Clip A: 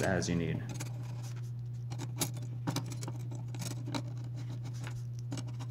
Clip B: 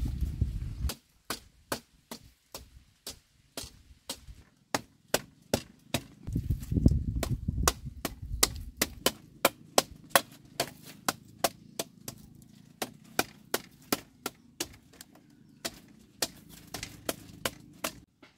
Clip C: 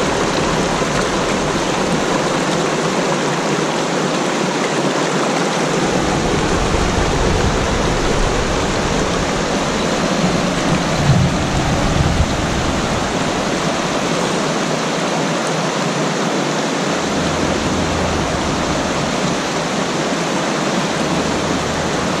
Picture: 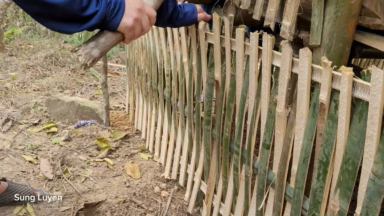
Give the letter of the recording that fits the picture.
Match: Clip B